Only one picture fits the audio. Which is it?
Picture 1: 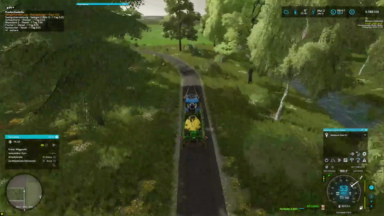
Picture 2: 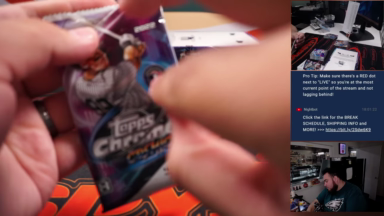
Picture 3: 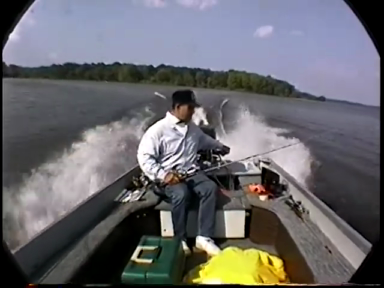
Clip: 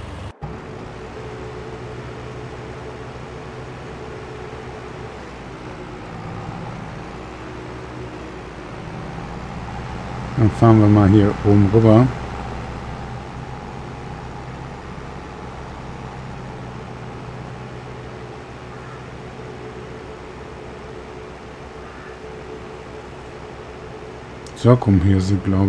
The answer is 1